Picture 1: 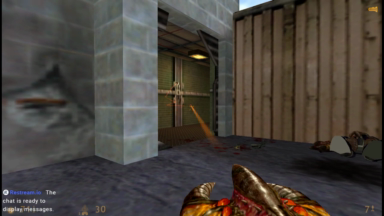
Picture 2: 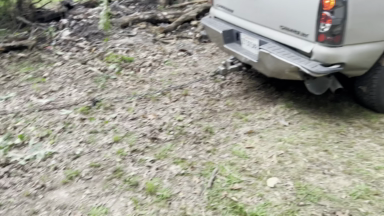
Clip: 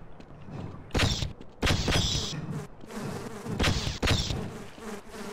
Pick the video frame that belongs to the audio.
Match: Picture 1